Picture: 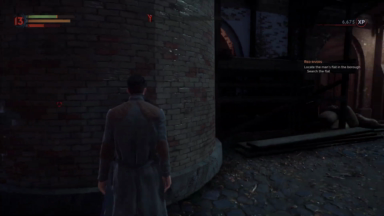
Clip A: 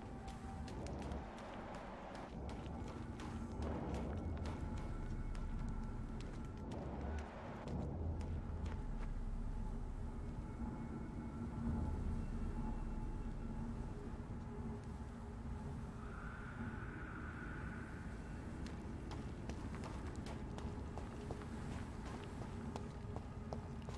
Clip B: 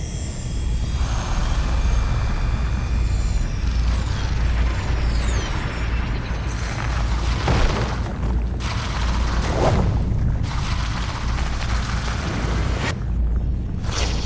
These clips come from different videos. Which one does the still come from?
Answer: A